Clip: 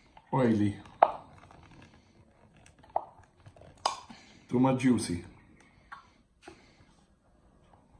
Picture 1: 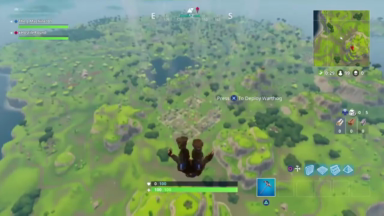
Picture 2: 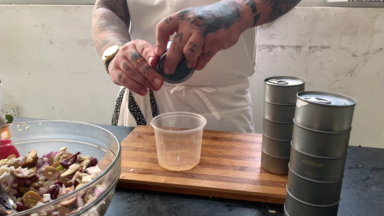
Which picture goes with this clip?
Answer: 2